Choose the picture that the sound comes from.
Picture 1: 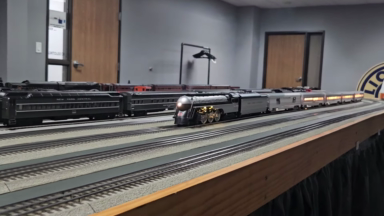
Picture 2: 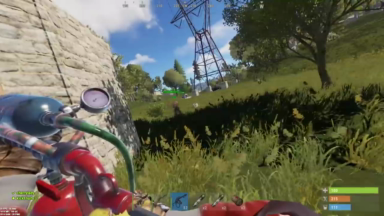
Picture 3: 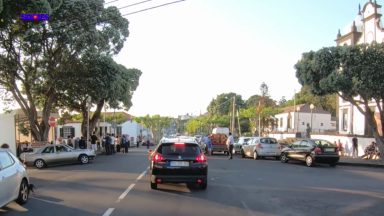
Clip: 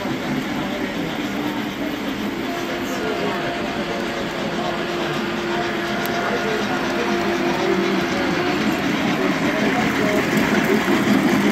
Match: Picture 1